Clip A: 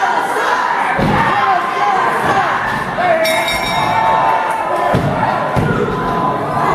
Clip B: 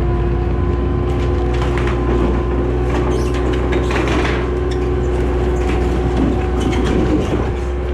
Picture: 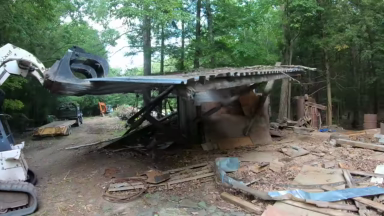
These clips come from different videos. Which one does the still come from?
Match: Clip B